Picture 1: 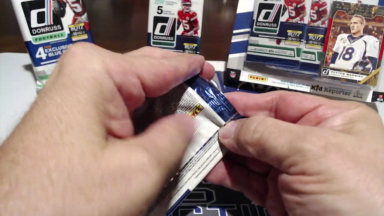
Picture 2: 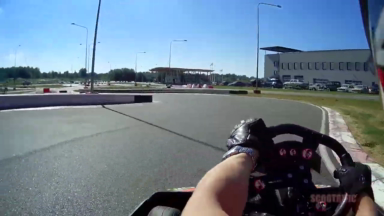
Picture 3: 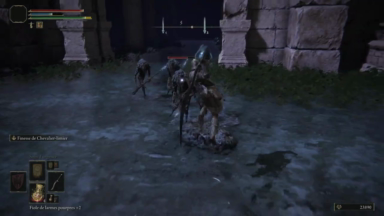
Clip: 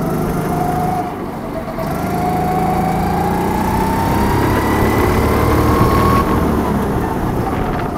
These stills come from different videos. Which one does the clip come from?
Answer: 2